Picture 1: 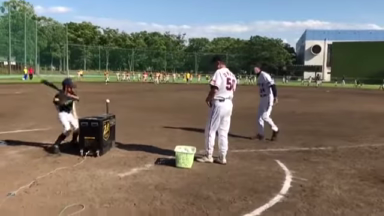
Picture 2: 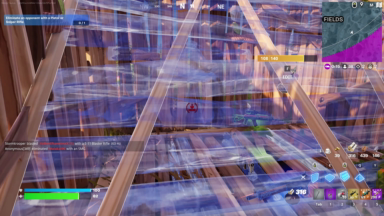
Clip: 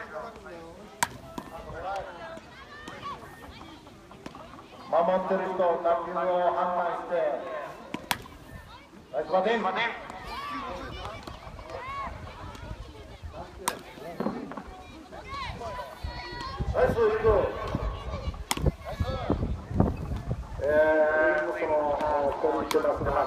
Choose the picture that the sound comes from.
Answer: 1